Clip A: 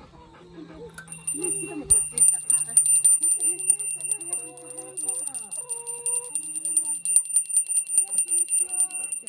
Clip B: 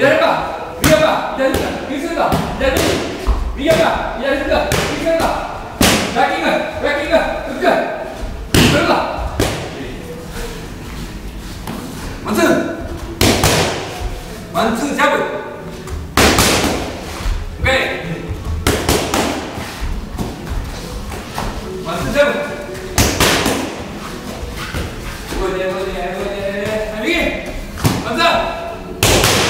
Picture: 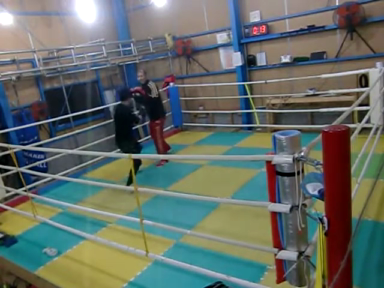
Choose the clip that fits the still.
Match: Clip B